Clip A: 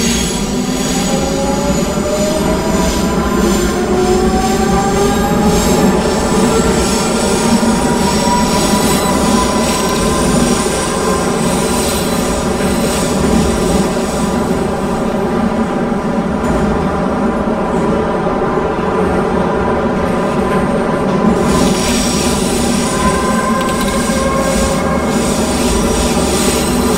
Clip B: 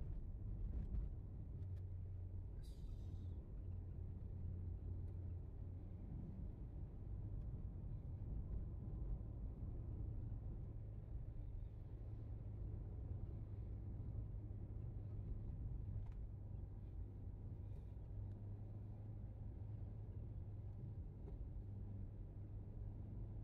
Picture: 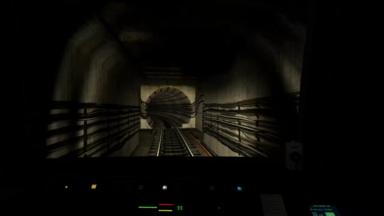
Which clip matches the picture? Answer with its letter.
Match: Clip A